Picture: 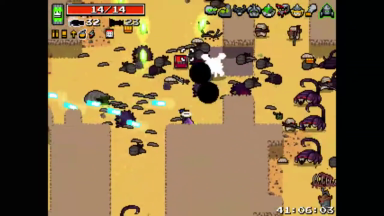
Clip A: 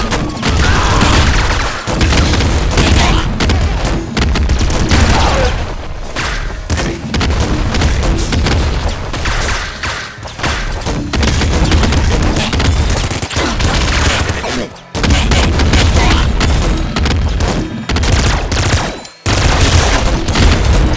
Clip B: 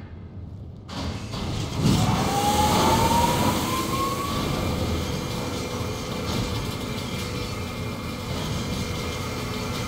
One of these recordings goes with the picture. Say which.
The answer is A